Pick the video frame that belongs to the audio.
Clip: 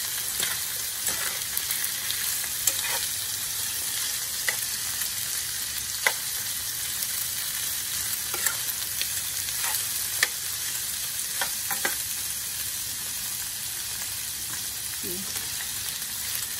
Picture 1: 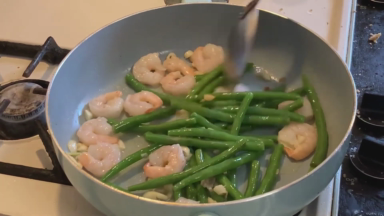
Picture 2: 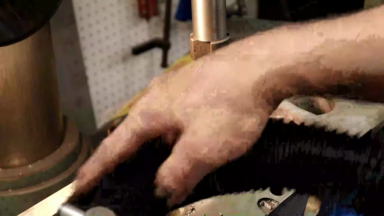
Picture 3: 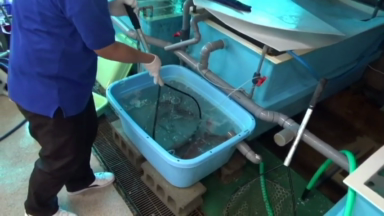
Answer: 1